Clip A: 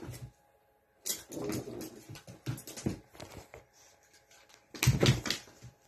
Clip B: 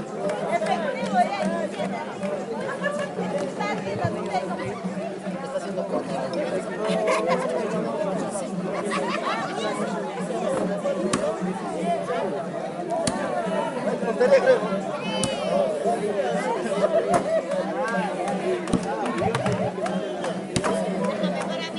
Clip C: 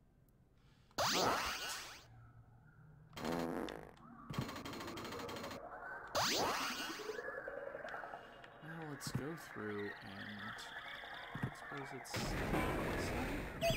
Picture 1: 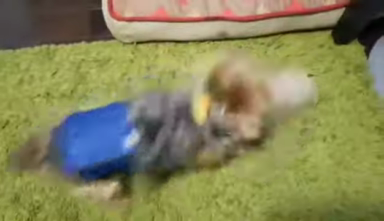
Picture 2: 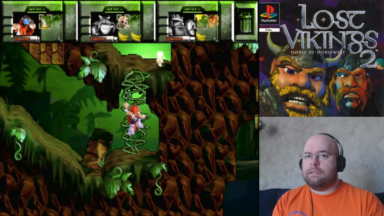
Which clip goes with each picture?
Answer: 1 A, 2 C